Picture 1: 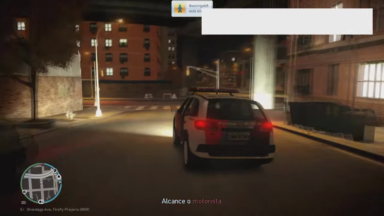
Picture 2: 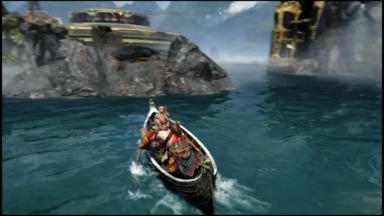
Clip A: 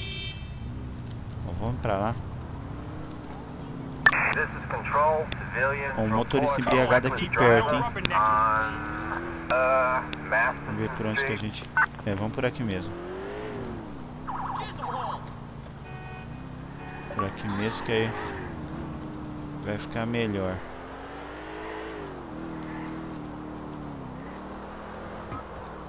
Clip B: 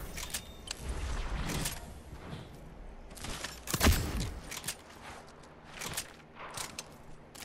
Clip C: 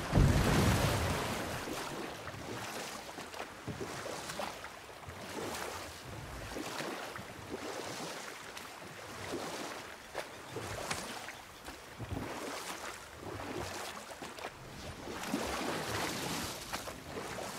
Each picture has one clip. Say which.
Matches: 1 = A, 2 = C